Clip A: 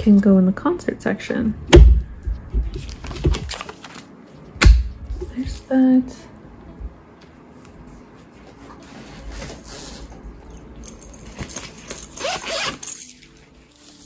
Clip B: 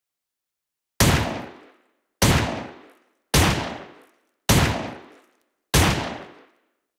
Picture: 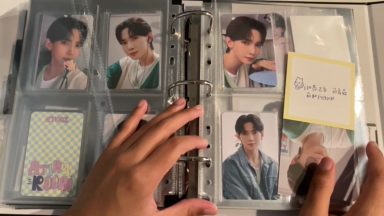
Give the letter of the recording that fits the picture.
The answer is A